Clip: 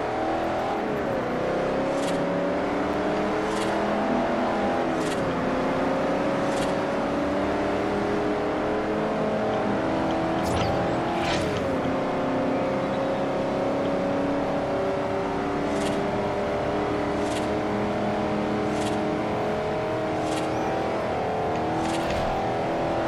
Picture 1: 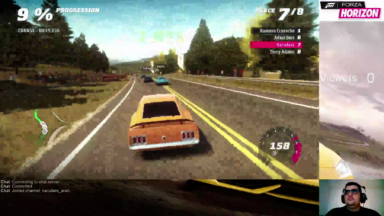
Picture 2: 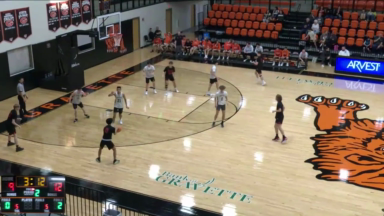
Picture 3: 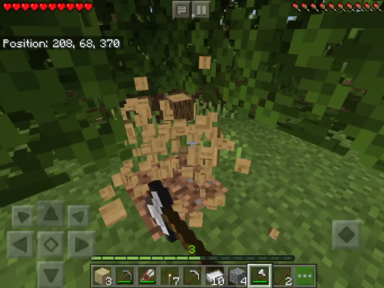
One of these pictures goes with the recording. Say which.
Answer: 1